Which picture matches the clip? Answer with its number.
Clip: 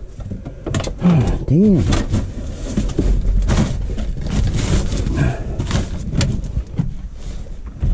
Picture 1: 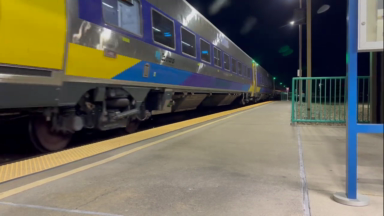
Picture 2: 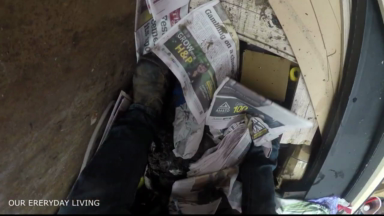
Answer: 2